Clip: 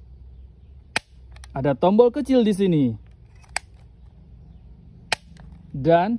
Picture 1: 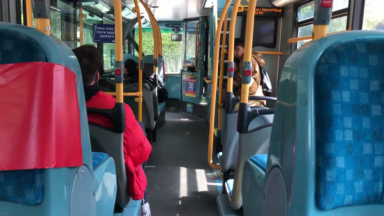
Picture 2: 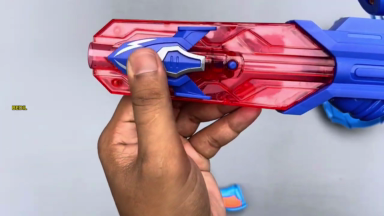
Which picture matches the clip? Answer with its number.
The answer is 2